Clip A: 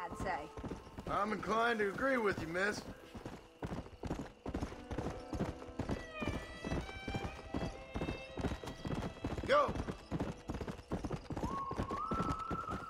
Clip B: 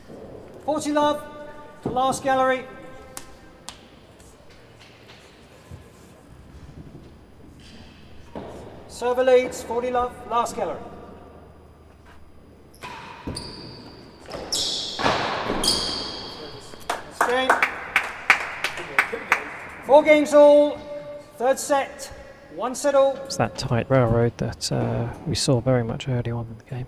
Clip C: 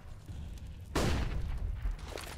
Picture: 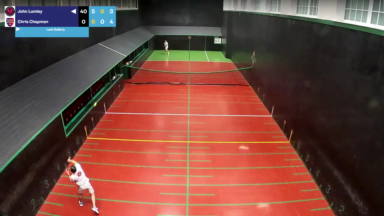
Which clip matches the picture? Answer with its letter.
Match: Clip B